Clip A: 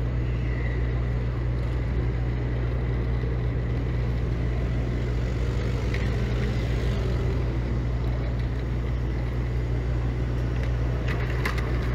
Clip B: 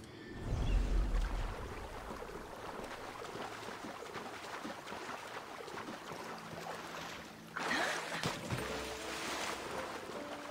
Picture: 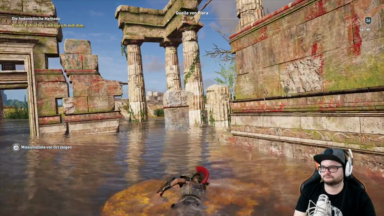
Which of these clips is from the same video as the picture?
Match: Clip B